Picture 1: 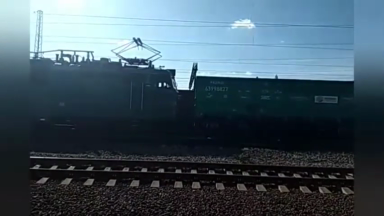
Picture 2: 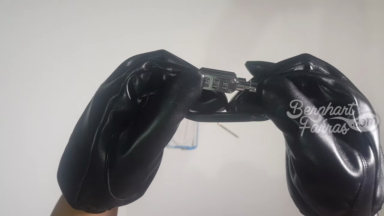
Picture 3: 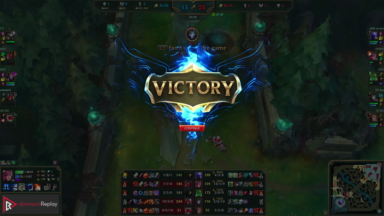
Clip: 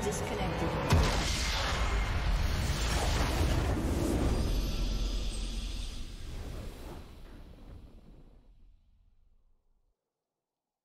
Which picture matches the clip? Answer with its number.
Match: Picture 3